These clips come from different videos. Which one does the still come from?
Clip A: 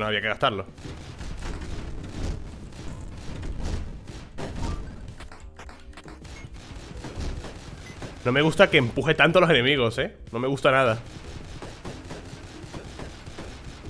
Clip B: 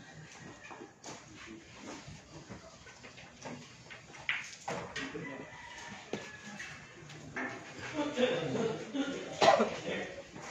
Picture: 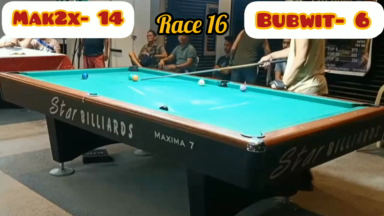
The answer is B